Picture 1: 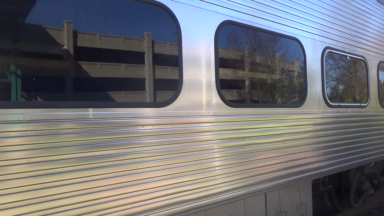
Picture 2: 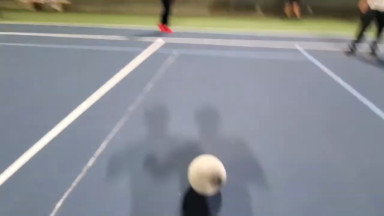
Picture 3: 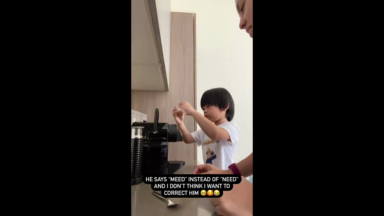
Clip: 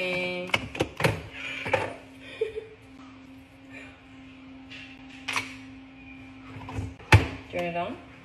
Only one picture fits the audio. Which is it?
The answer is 3